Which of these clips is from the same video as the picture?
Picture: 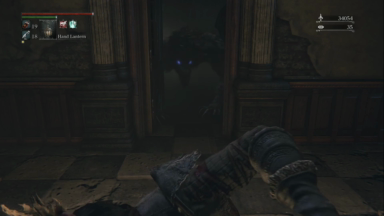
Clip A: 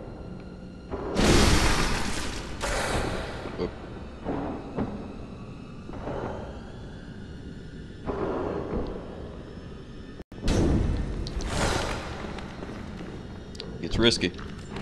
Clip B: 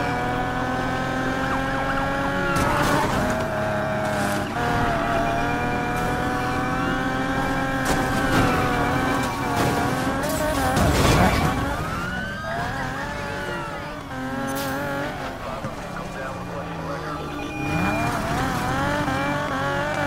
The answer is A